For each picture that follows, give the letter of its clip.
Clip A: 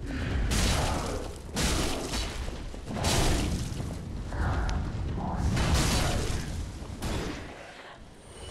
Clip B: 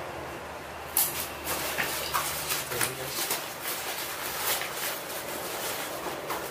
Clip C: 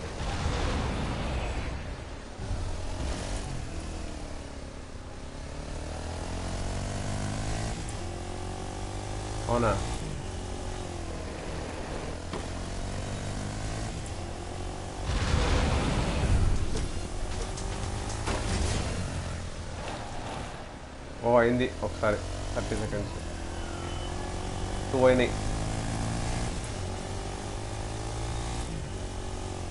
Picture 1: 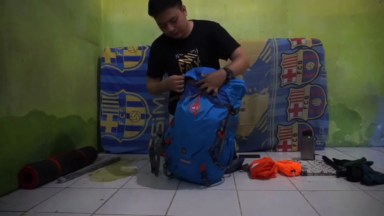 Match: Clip B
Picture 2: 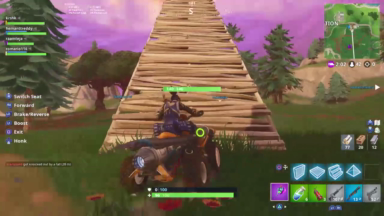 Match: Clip C